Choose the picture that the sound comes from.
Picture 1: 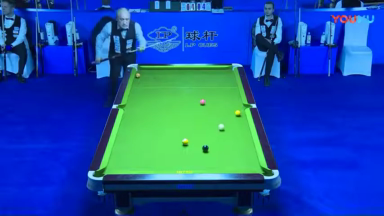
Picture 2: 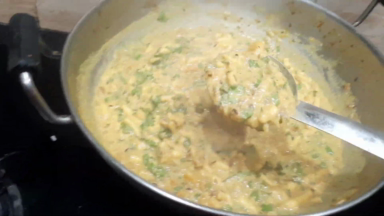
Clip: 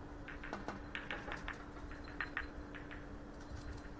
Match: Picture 1